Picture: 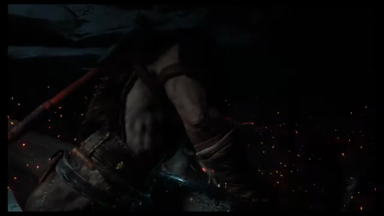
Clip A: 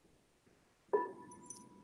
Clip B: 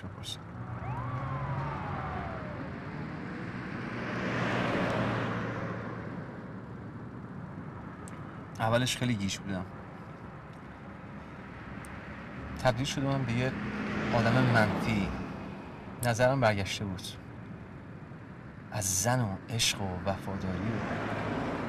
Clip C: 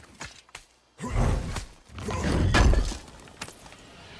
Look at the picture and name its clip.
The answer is C